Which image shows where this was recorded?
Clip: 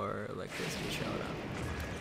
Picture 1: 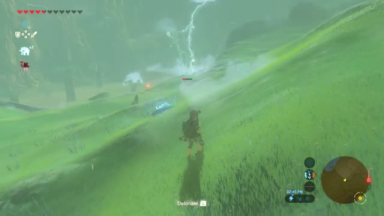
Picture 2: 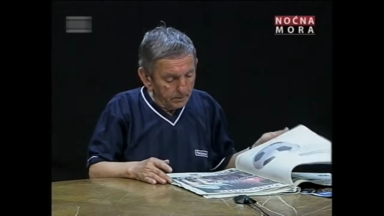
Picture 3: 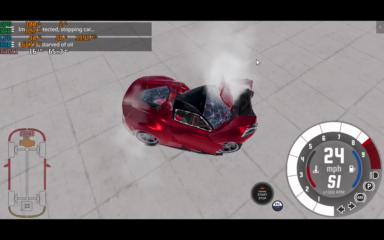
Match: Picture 1